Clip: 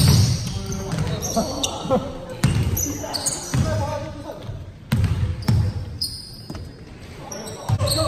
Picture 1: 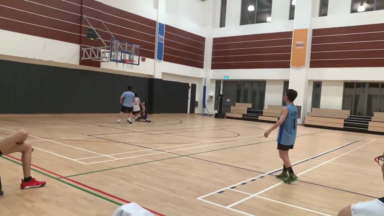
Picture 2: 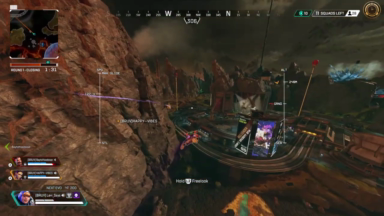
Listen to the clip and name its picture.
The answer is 1